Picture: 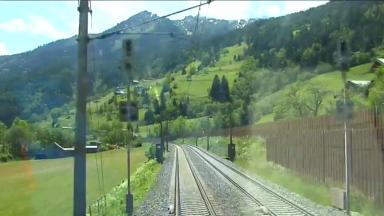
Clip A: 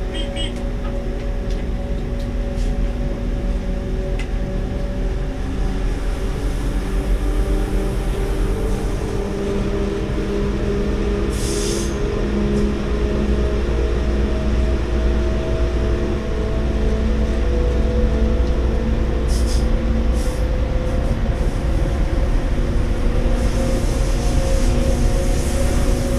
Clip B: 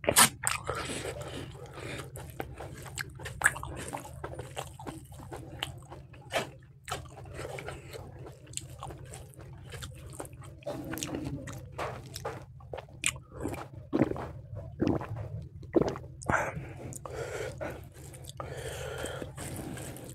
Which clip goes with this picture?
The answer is A